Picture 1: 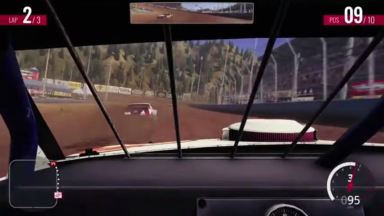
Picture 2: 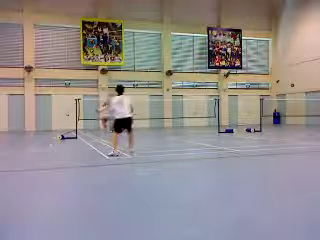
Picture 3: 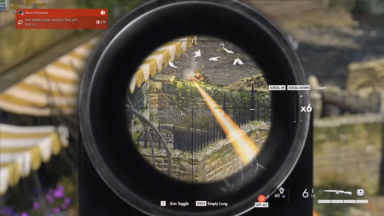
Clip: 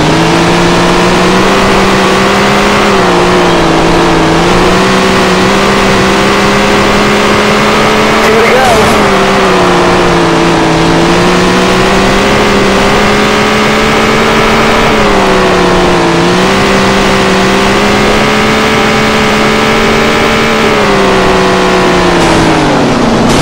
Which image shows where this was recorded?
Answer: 1